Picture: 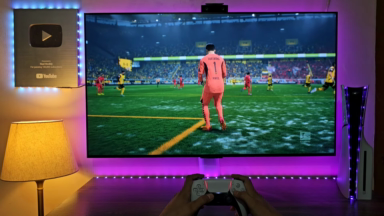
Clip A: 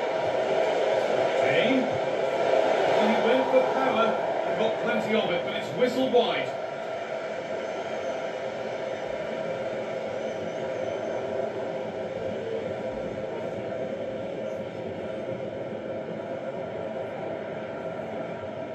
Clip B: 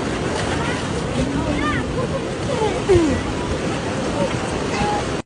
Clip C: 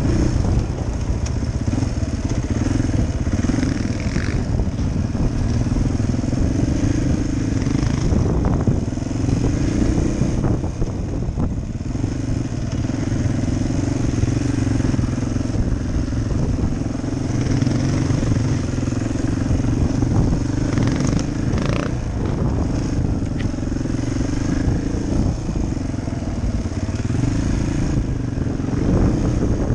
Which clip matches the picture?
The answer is A